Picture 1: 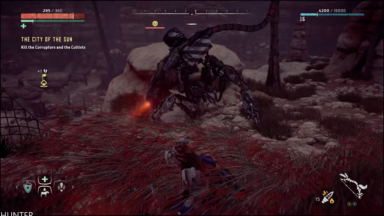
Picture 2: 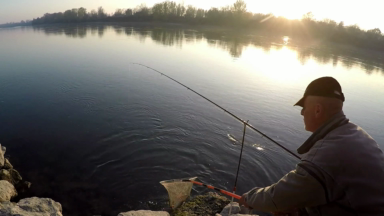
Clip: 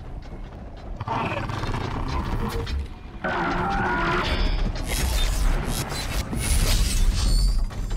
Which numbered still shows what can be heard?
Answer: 1